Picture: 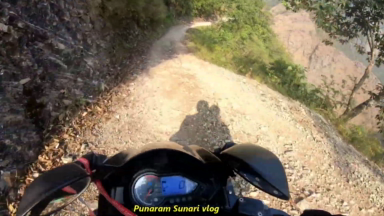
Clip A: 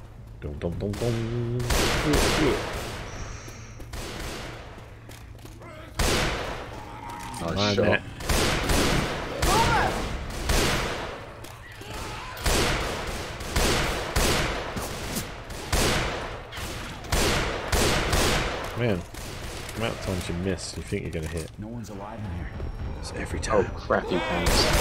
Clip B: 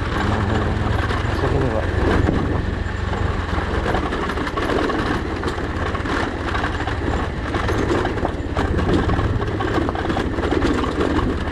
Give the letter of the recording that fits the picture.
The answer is B